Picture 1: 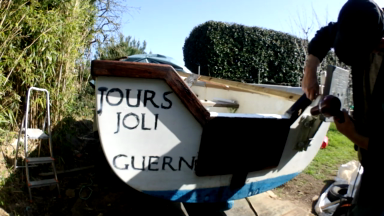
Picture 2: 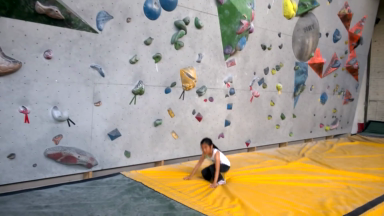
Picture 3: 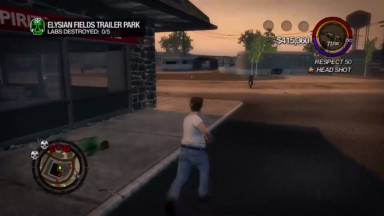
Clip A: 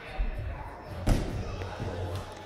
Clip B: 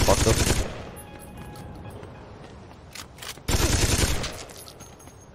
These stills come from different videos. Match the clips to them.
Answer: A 2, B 3